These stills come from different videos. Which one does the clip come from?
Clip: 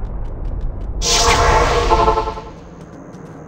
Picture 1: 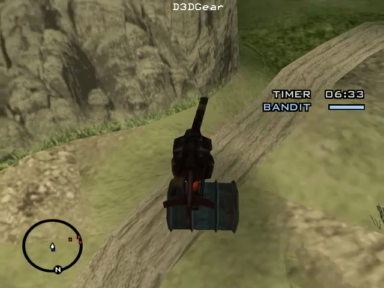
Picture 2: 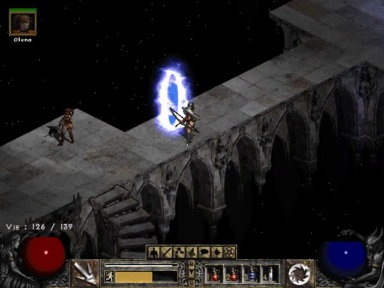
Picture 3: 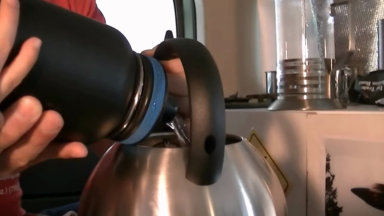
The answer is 2